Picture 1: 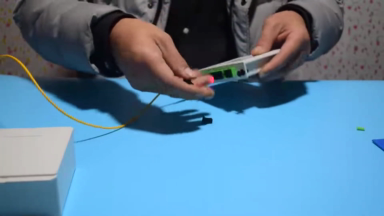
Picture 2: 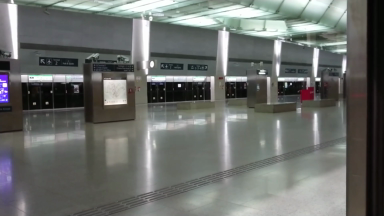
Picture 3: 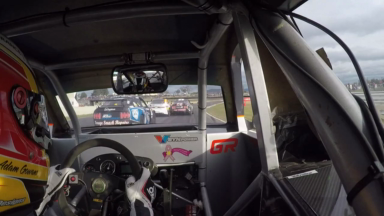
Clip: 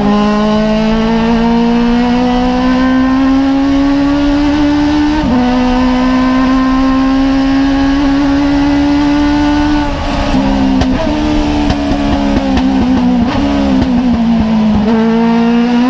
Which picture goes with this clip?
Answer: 3